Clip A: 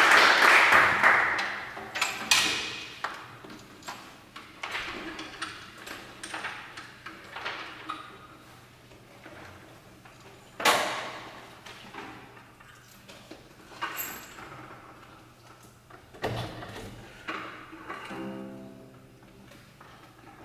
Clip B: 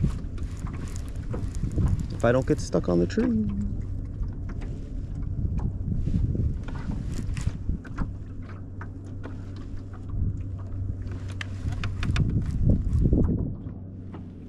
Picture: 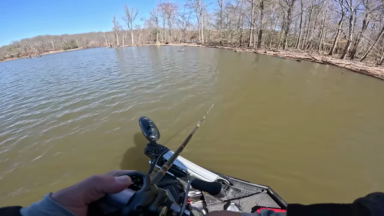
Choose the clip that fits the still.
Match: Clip B